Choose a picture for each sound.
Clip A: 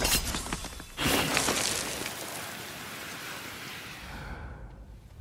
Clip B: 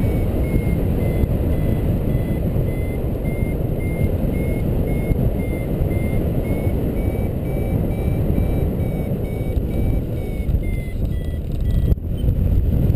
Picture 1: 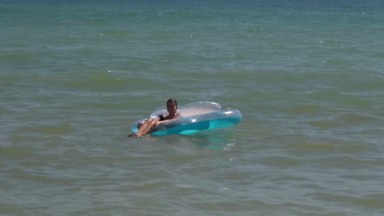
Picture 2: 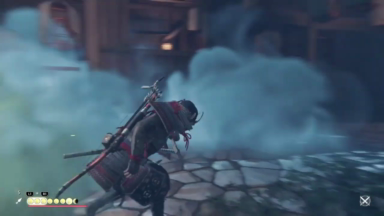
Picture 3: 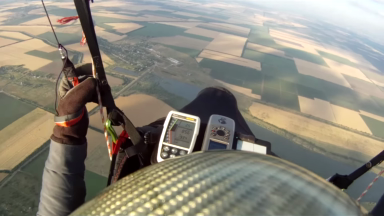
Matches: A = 2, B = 3